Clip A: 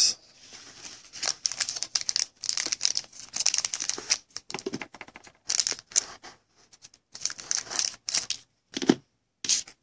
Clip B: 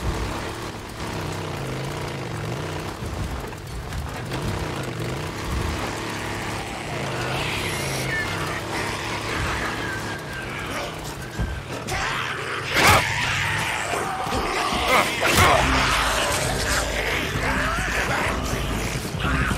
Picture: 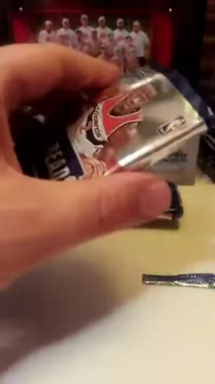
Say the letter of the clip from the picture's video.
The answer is A